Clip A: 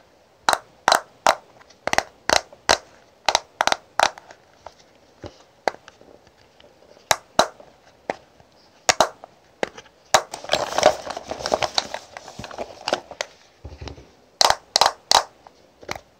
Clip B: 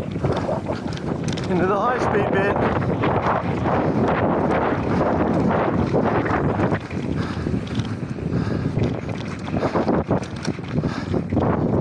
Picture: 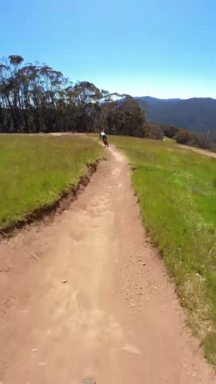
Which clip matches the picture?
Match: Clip B